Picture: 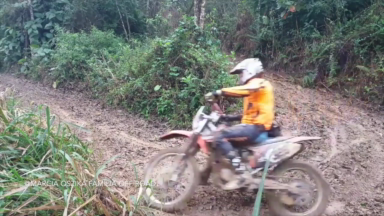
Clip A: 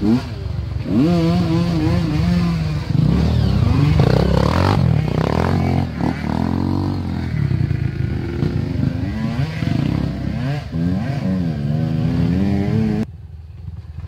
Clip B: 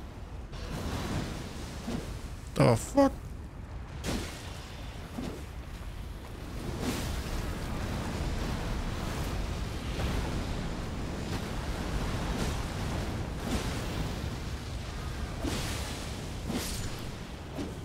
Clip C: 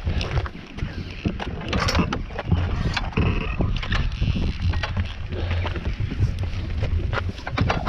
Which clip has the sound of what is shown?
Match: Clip A